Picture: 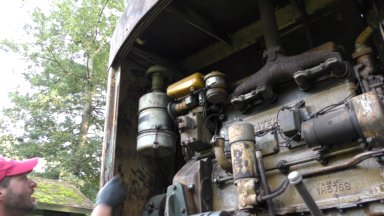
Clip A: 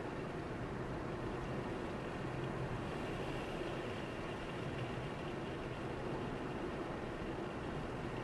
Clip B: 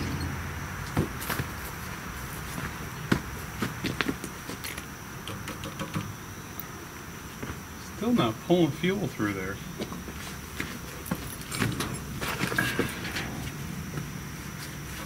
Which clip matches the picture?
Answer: B